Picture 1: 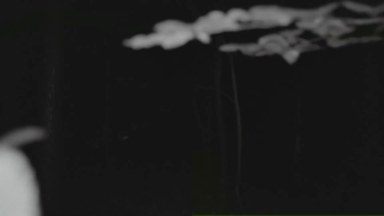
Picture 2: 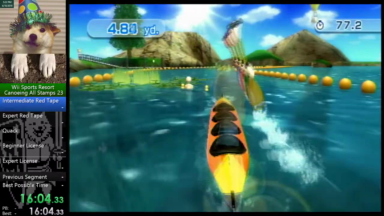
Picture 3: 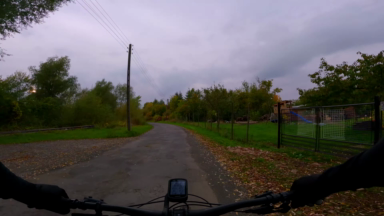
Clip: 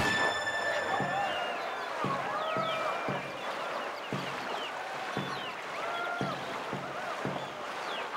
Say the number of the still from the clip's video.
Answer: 2